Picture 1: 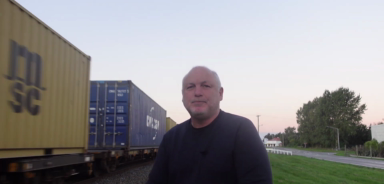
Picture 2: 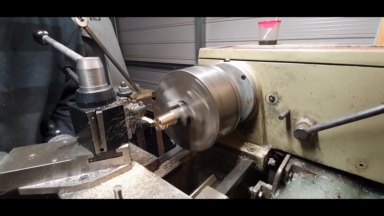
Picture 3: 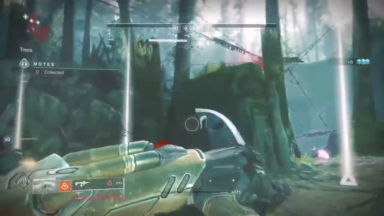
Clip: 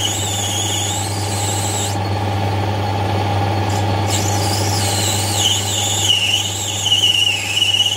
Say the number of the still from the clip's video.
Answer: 2